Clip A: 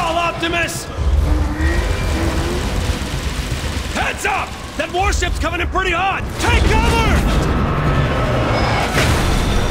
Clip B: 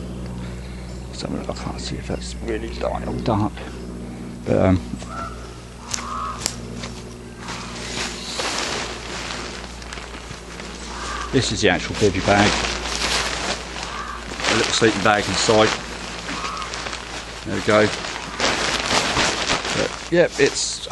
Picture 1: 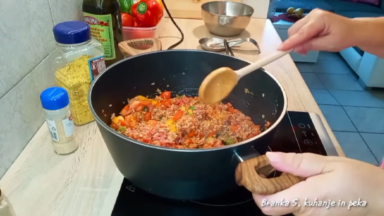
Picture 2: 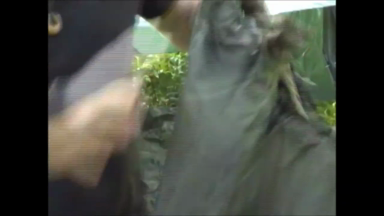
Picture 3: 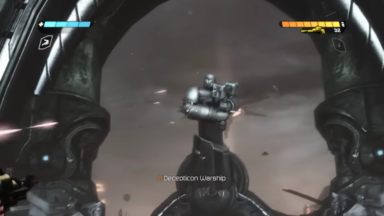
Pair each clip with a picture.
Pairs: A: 3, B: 2